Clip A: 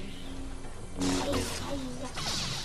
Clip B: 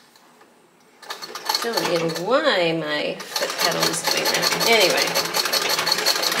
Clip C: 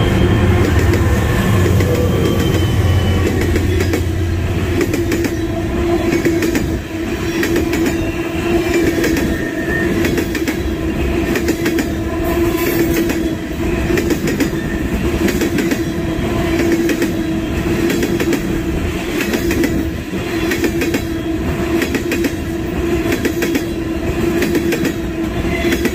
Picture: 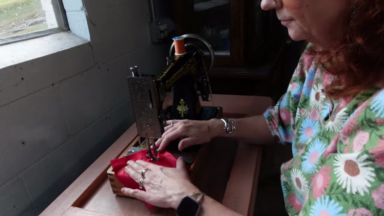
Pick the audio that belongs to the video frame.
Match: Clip B